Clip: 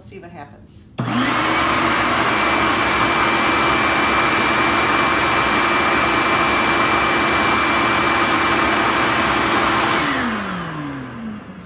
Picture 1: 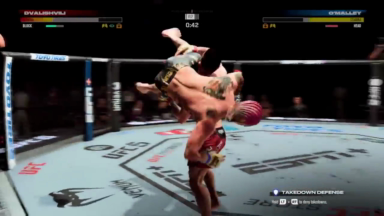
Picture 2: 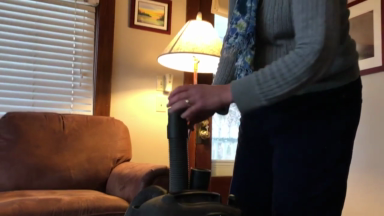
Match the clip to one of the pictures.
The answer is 2